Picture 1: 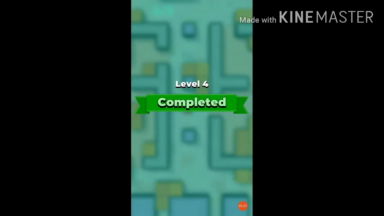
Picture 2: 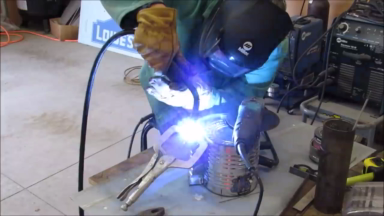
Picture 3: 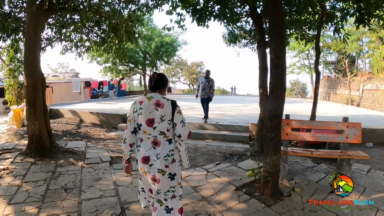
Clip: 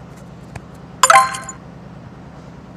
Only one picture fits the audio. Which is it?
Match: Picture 1